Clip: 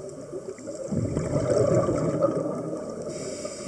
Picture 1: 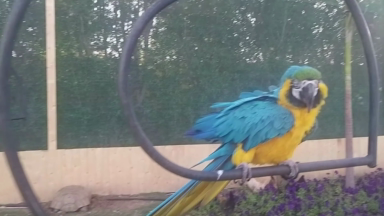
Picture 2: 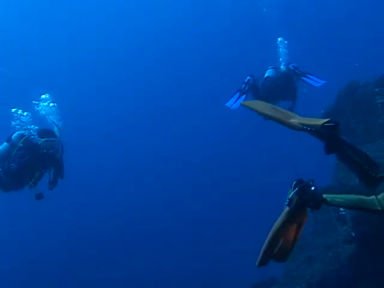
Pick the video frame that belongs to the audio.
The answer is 2